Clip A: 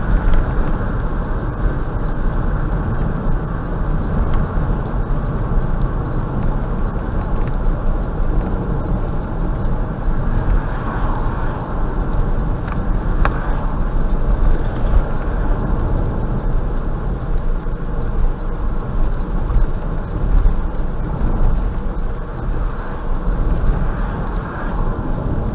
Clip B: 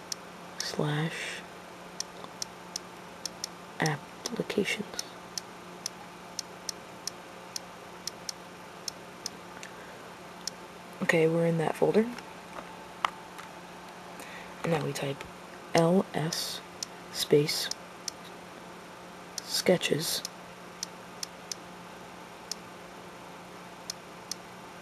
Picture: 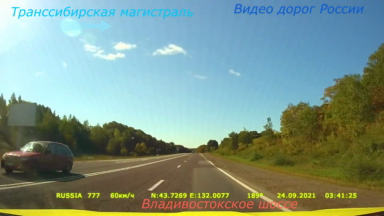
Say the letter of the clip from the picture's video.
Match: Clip A